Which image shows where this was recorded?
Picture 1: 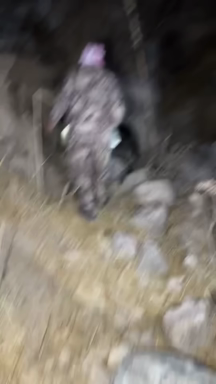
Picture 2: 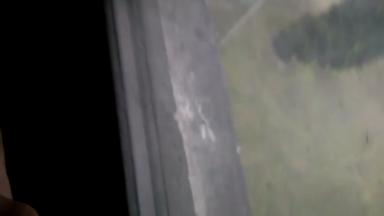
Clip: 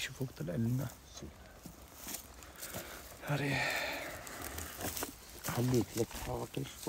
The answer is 1